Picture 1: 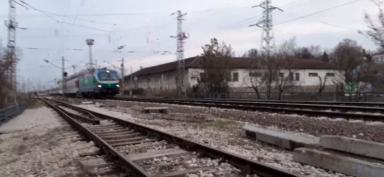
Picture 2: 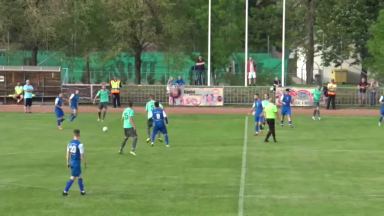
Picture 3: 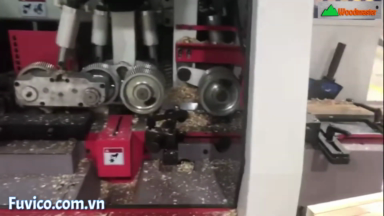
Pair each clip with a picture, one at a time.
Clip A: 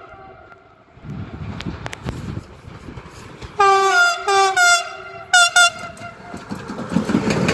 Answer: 1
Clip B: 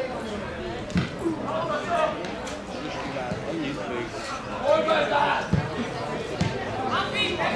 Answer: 2